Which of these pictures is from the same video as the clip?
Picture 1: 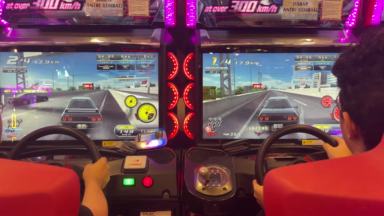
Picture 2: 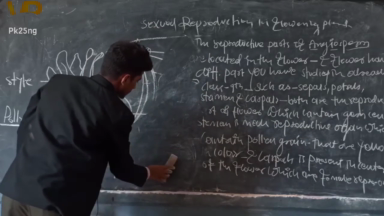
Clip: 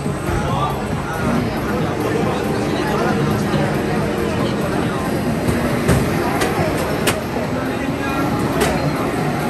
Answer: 1